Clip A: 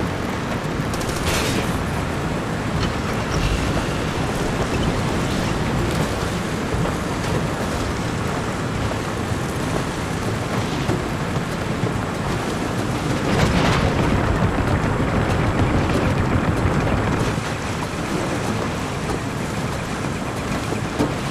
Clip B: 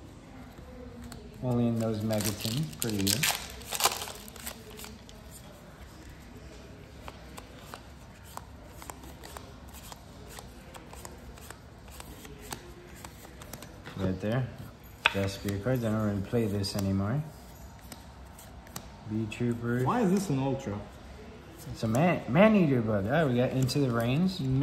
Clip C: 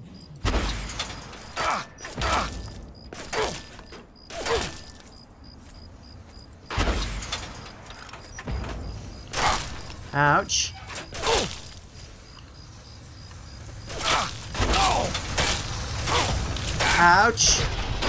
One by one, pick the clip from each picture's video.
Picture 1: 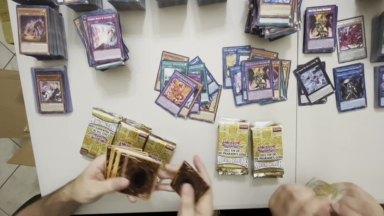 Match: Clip B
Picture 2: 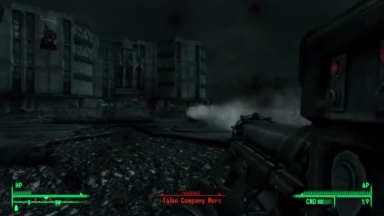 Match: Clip C